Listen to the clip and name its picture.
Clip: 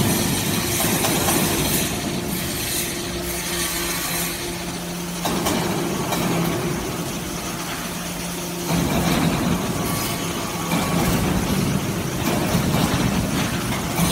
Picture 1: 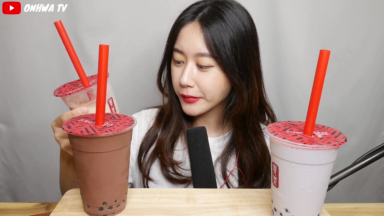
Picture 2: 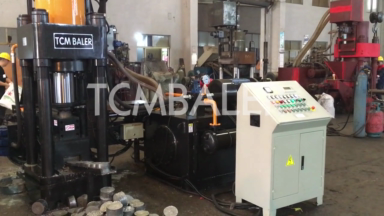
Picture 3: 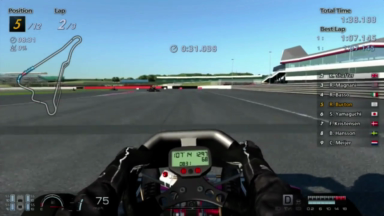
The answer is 2